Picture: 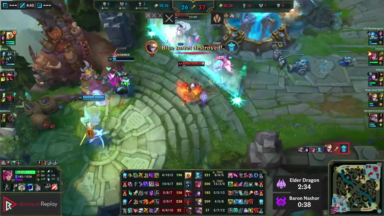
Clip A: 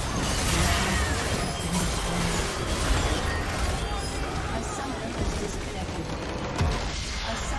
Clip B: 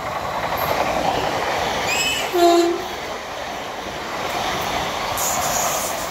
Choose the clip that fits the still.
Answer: A